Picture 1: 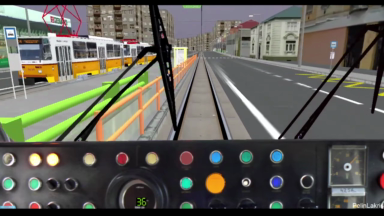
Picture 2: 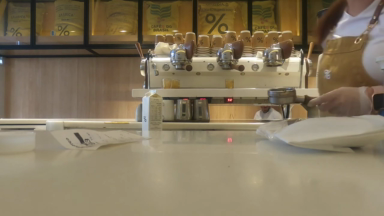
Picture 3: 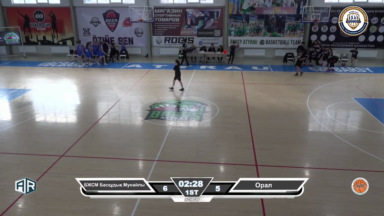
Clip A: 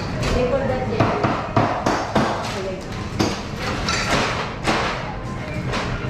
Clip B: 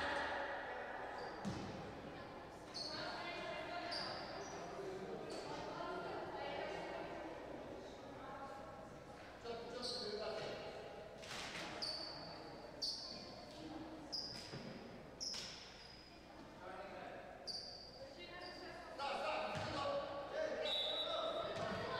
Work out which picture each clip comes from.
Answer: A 2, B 3